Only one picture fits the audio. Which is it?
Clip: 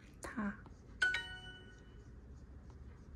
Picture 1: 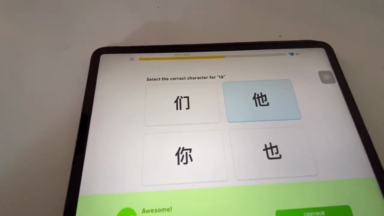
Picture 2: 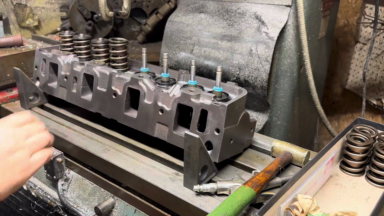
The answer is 1